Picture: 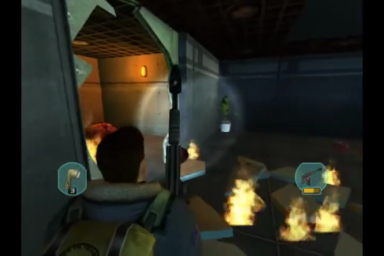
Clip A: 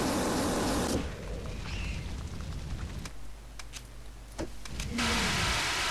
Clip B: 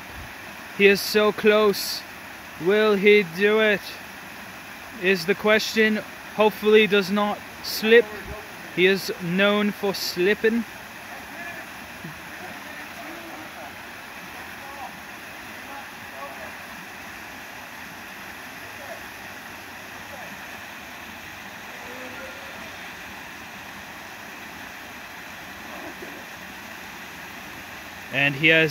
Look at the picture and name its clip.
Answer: A